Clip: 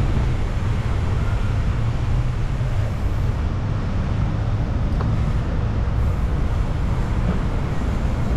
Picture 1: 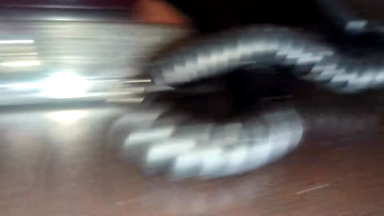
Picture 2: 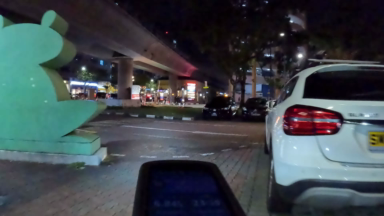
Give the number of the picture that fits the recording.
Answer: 2